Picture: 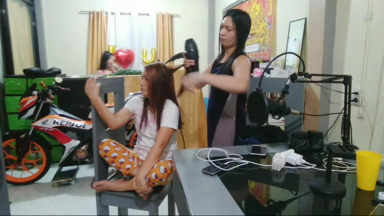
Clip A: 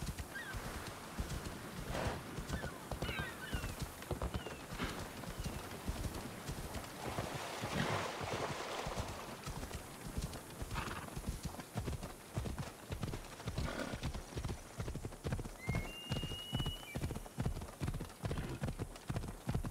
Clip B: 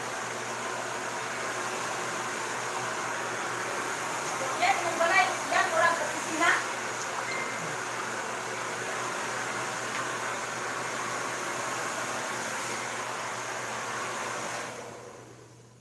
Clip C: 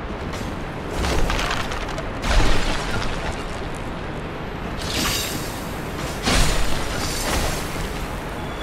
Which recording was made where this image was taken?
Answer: B